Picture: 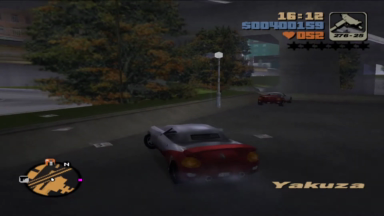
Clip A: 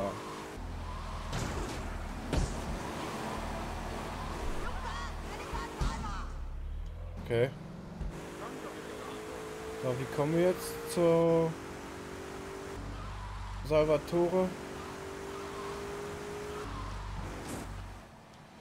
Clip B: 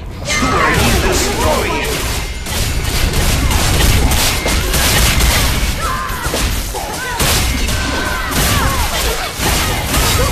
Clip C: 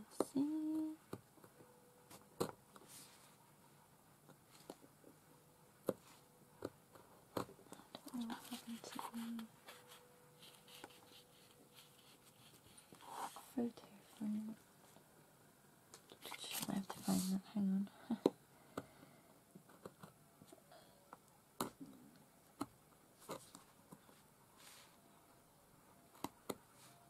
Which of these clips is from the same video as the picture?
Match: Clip A